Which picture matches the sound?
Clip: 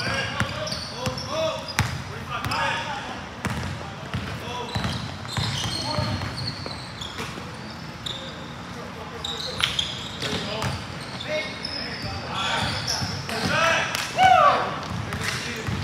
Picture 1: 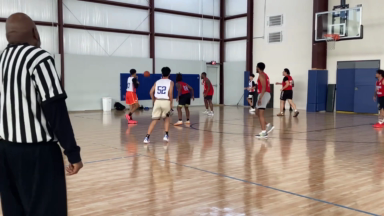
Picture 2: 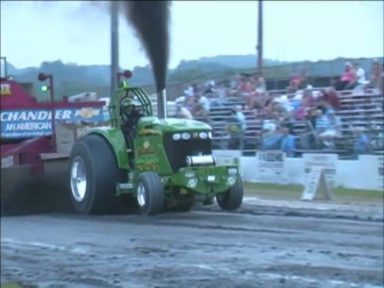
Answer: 1